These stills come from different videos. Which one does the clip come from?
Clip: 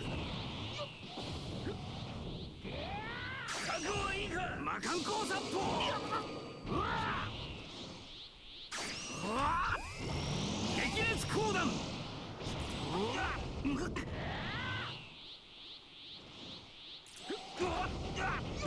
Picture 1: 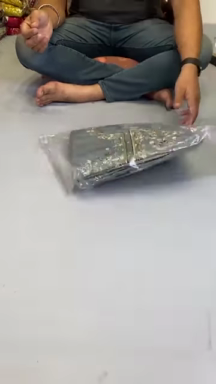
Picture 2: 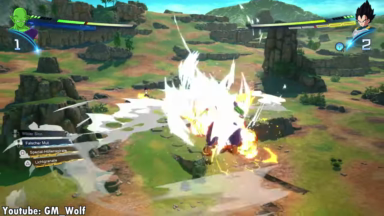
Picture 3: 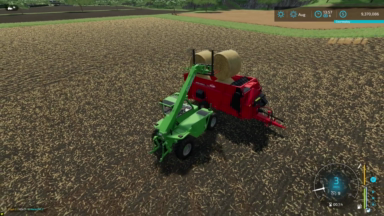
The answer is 2